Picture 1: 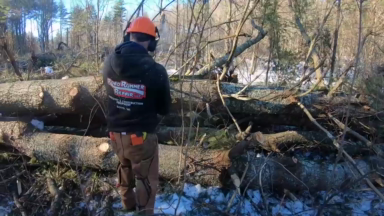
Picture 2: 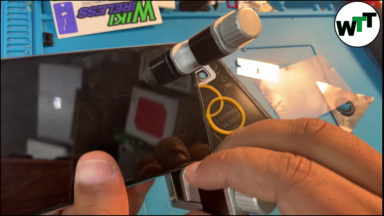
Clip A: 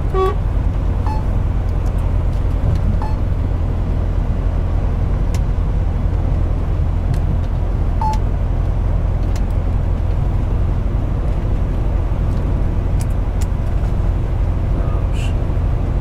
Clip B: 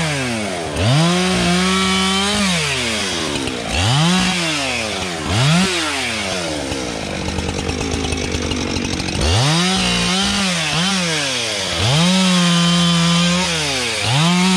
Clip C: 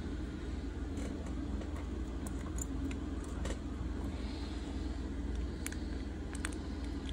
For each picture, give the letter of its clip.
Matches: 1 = B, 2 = C